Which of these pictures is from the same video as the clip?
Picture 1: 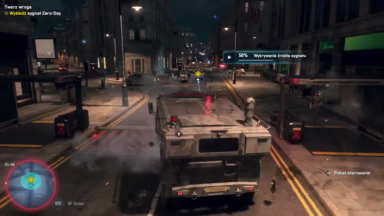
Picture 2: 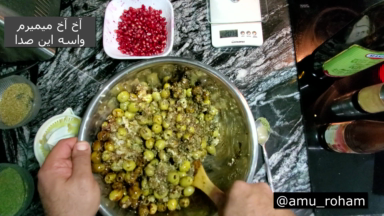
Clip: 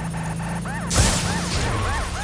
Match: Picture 1